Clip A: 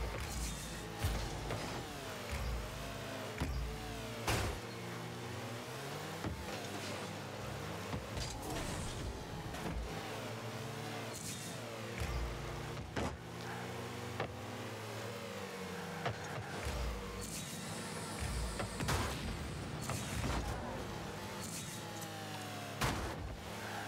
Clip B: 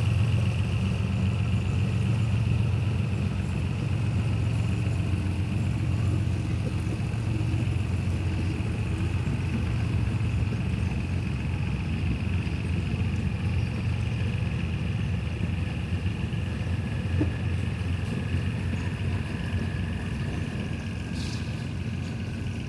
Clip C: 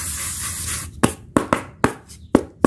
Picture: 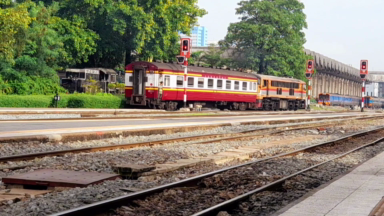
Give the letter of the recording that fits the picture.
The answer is B